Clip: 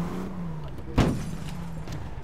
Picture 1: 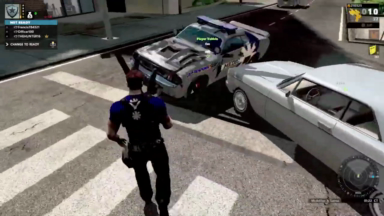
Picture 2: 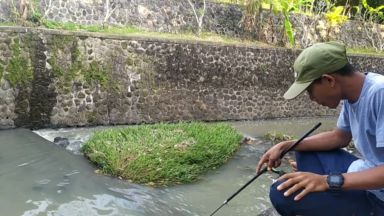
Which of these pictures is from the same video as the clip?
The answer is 1